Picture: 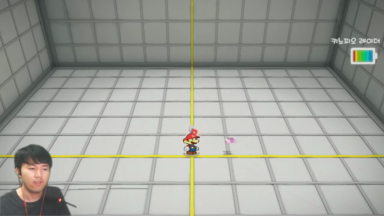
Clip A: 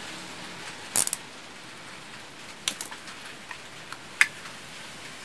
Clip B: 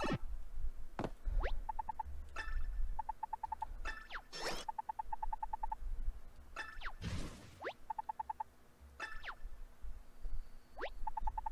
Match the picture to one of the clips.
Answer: B